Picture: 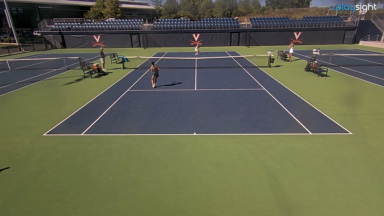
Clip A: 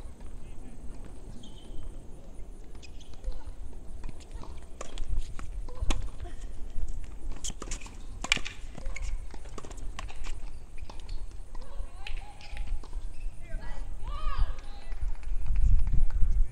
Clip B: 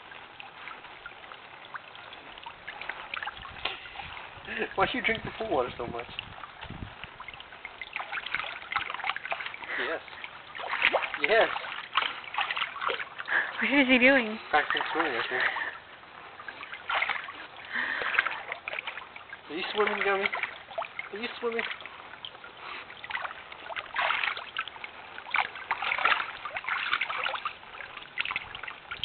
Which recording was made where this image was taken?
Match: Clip A